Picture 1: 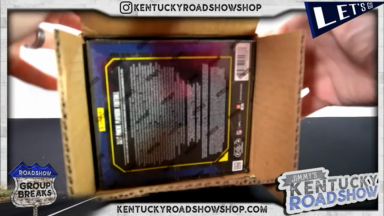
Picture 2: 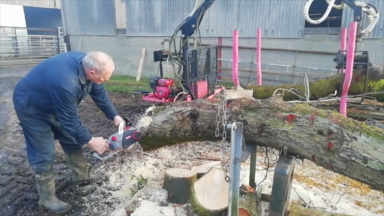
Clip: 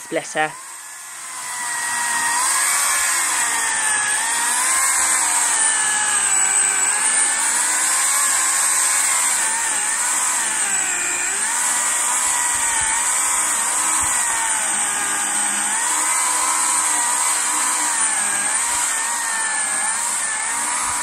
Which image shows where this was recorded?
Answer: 2